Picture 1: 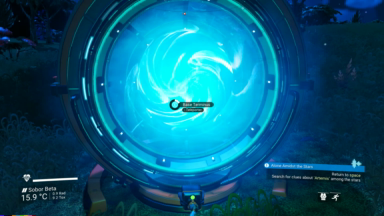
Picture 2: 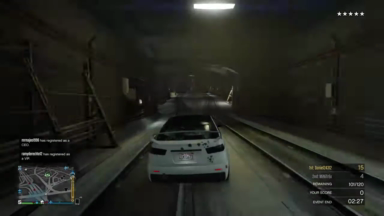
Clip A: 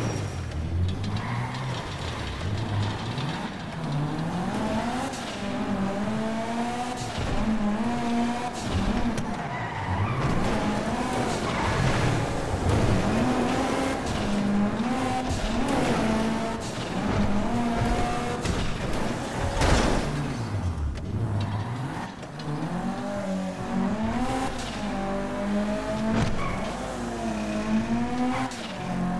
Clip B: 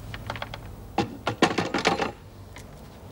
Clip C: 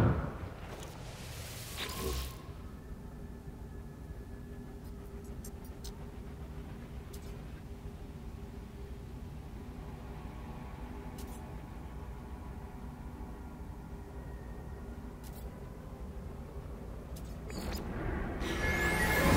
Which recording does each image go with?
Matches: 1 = C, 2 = A